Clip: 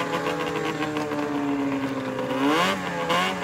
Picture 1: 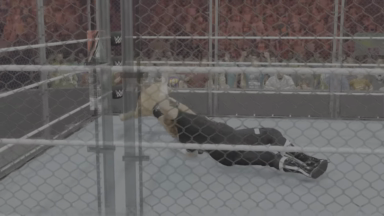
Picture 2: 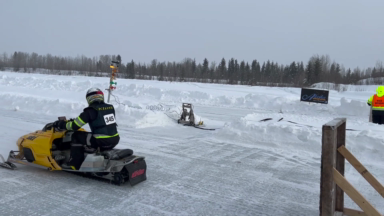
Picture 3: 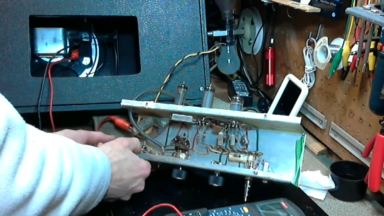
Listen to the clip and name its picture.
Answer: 2